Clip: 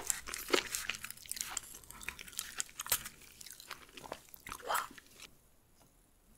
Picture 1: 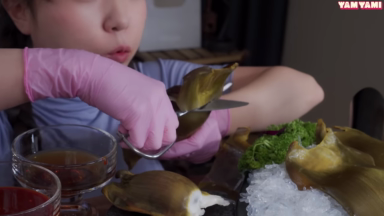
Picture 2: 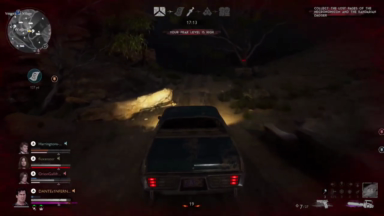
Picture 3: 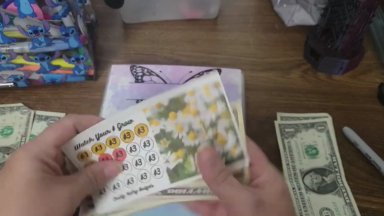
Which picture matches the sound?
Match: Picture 1